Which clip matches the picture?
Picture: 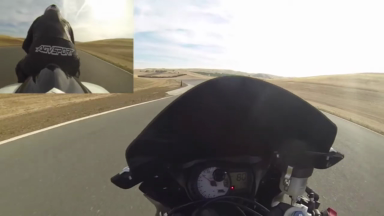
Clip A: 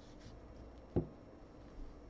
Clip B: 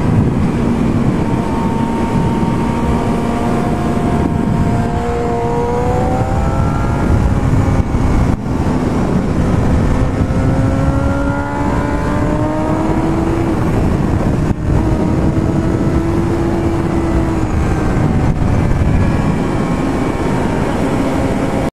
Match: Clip B